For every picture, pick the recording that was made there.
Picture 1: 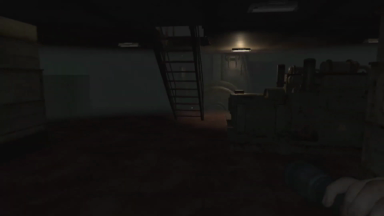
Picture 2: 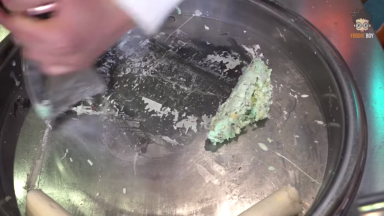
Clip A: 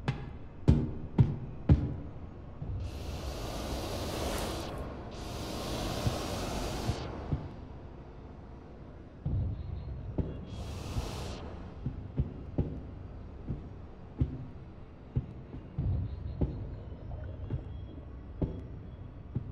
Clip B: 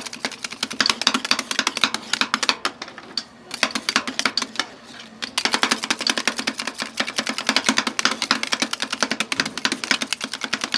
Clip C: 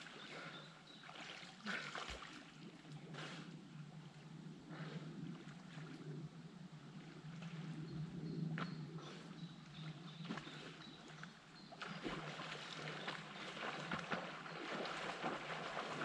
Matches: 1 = A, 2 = B